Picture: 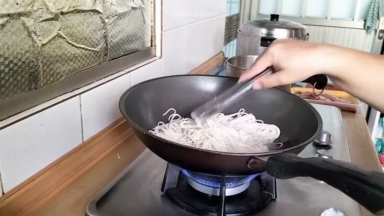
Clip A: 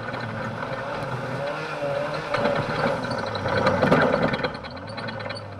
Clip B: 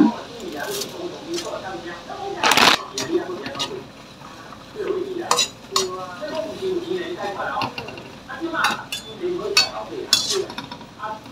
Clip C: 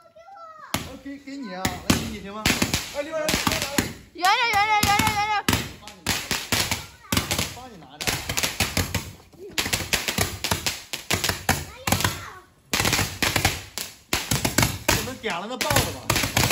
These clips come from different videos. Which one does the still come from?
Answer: B